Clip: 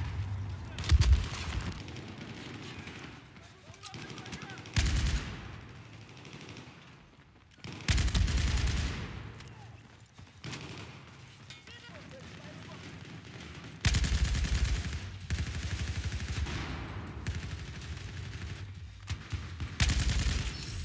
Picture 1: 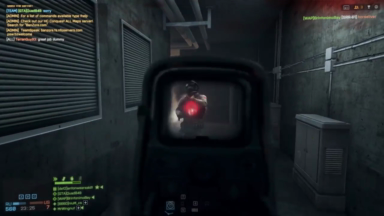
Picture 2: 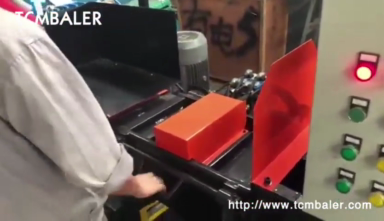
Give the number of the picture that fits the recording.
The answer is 1